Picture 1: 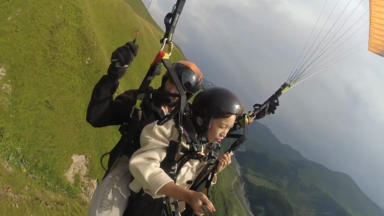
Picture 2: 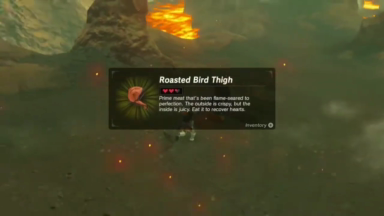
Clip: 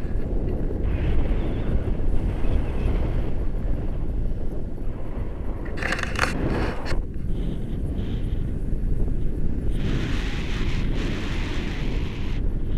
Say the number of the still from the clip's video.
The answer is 1